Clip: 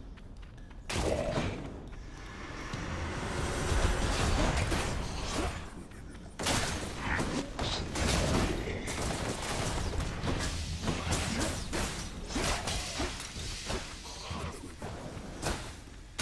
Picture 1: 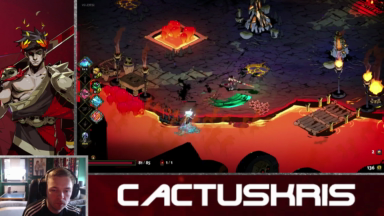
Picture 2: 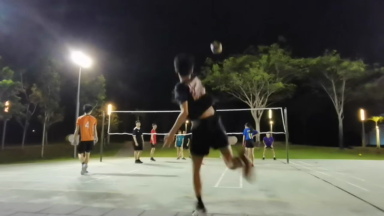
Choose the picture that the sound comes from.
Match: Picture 1